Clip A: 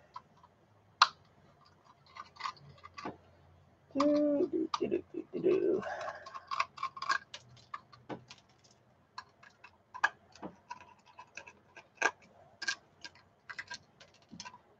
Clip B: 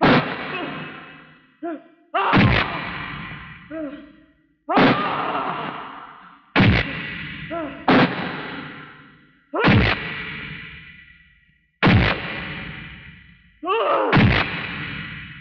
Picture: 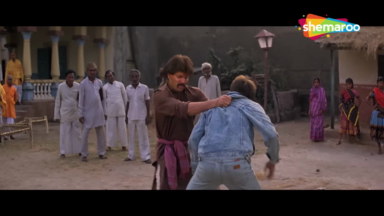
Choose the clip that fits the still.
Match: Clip B